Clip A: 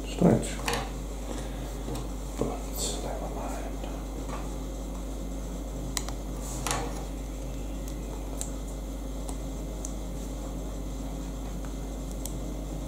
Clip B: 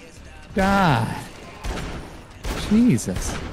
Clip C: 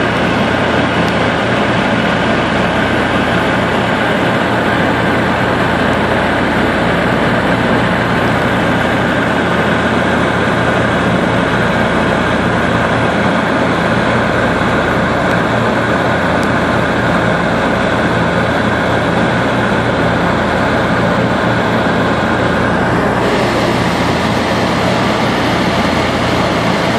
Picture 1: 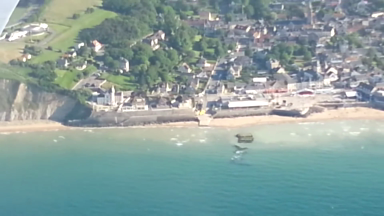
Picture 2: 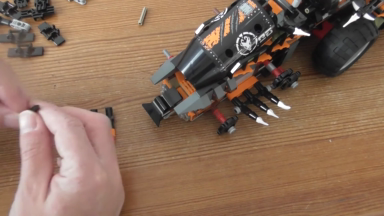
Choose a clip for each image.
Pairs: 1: C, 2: A